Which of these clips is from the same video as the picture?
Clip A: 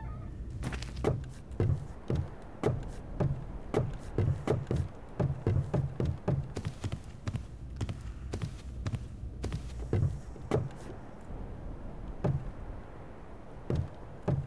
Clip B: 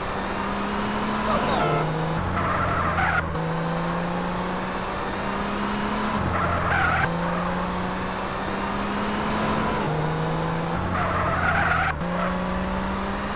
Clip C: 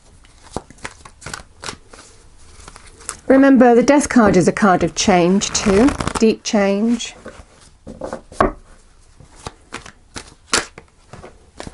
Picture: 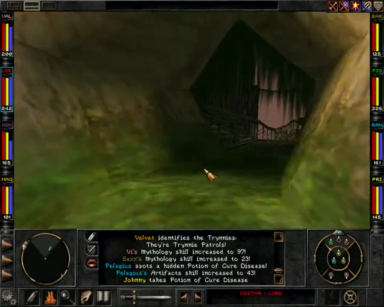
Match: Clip A